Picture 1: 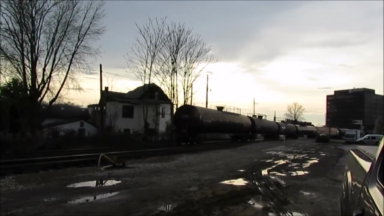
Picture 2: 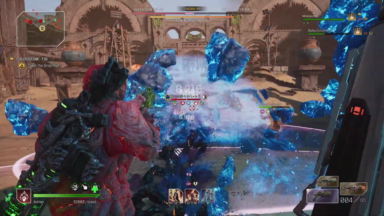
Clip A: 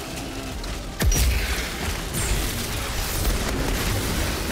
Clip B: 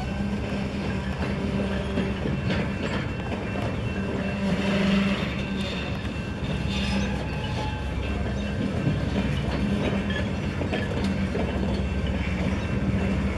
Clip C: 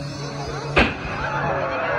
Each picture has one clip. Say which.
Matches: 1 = B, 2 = A